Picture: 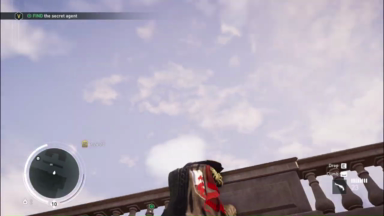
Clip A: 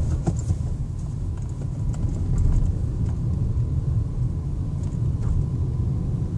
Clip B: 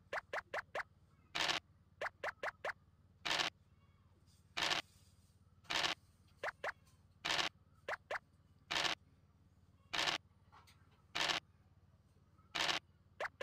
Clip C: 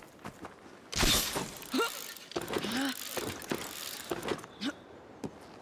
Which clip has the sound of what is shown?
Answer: C